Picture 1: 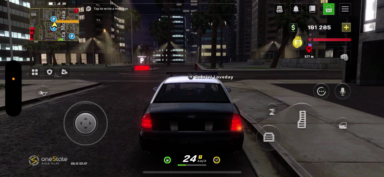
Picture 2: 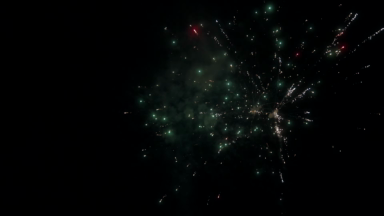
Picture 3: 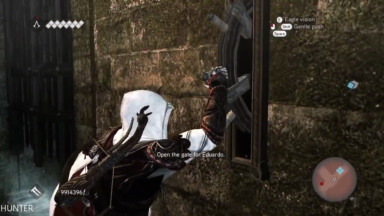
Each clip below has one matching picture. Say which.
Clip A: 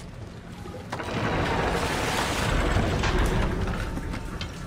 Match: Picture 3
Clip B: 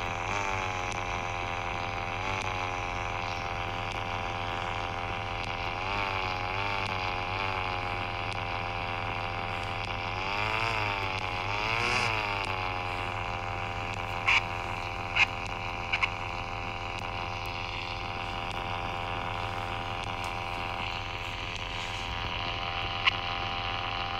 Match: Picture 1